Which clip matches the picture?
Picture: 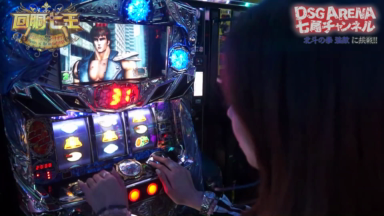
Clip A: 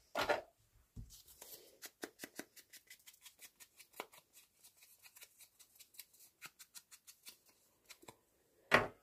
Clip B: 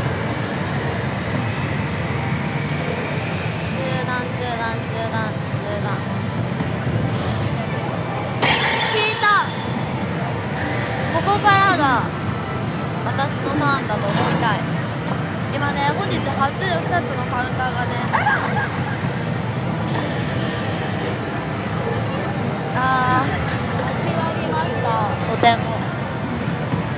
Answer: B